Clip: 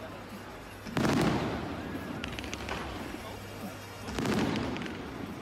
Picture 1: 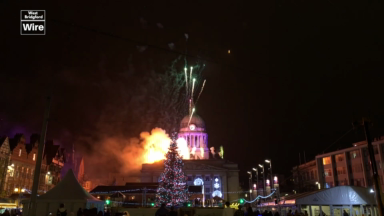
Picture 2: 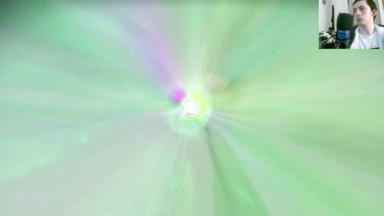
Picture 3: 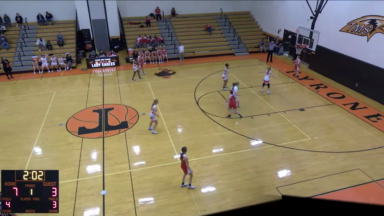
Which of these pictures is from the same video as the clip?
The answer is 1